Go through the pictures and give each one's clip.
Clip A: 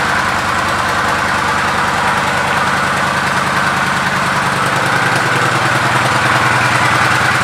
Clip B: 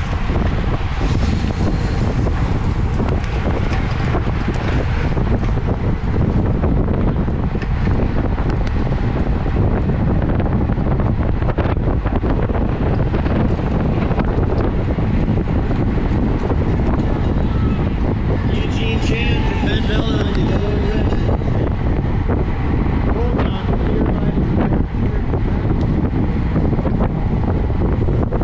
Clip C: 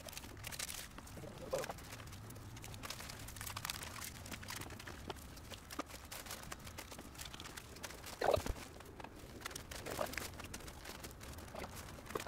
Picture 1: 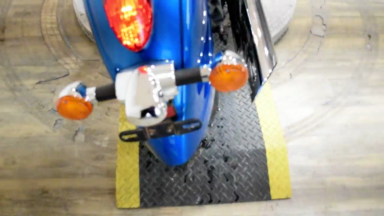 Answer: A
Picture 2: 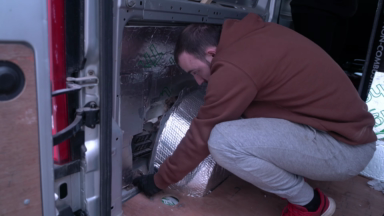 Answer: C